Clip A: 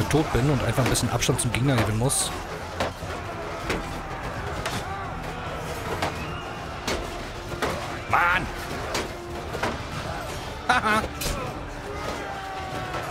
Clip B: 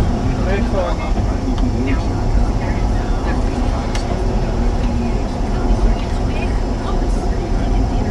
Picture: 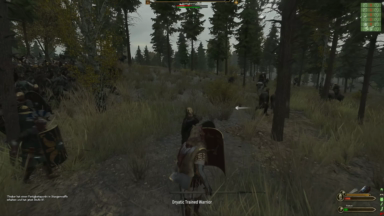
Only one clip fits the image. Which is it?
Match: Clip A